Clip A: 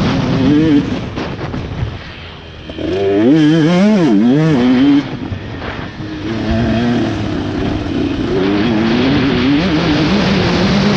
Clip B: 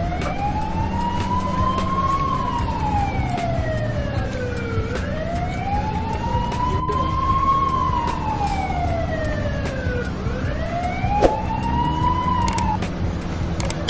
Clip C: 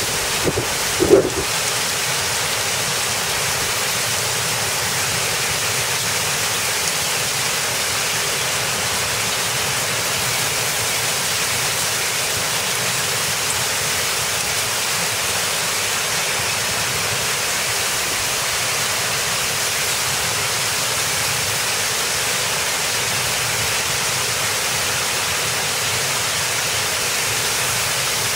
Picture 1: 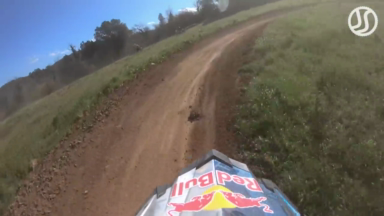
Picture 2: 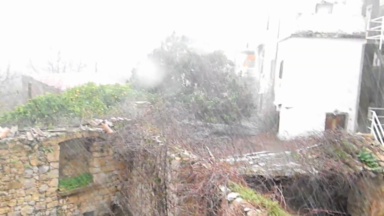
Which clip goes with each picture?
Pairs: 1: A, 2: C